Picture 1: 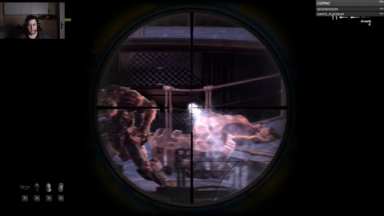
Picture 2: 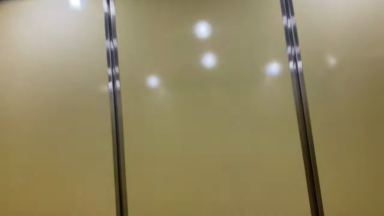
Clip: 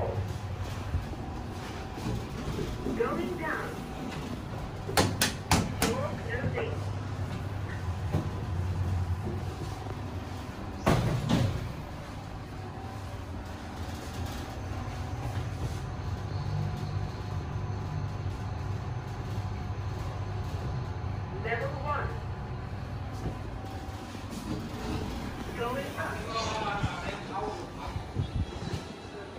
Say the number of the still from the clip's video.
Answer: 2